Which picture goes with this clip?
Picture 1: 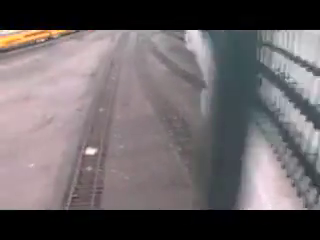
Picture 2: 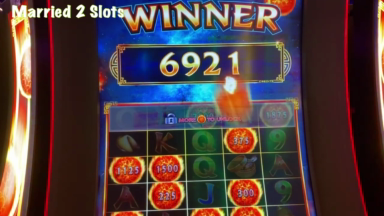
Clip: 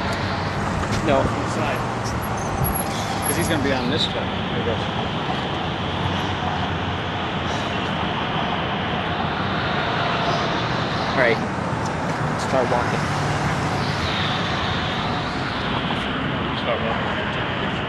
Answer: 1